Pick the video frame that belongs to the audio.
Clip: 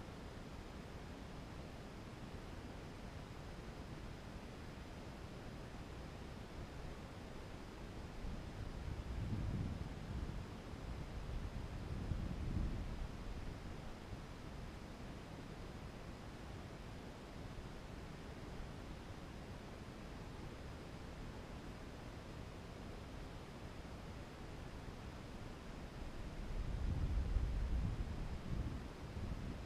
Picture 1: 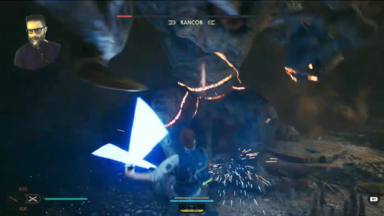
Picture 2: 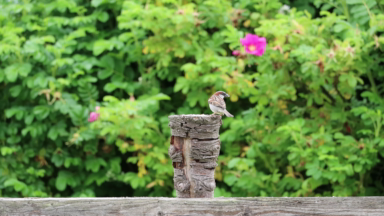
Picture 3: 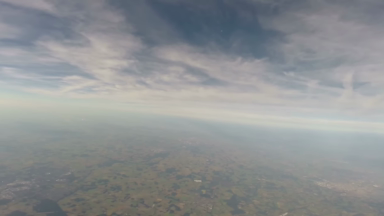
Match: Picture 3